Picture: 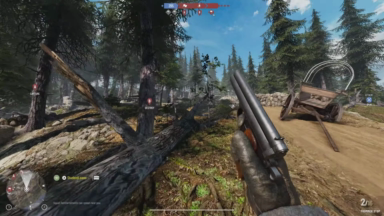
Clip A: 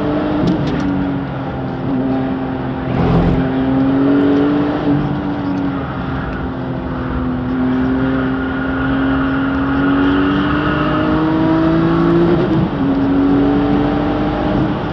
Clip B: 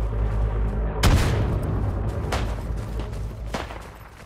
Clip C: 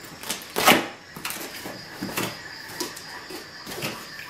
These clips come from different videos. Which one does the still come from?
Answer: B